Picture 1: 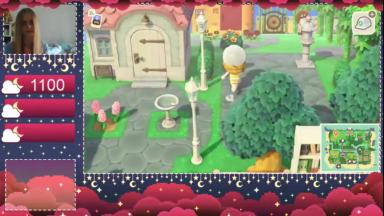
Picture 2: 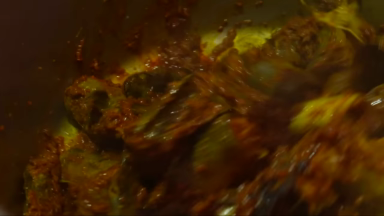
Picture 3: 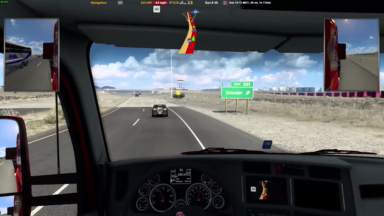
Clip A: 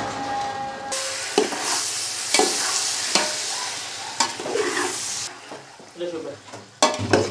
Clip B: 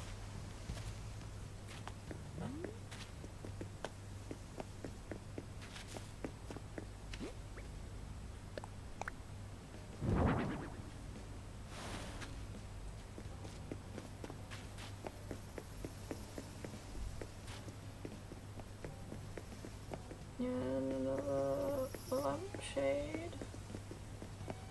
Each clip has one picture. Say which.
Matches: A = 2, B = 1